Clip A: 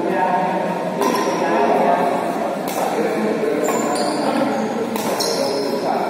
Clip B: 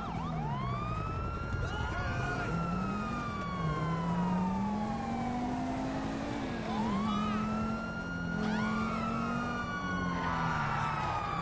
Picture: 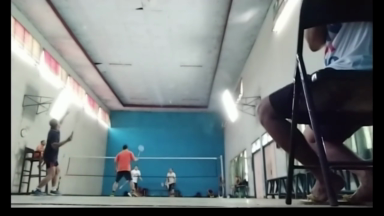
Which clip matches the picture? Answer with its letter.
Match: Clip A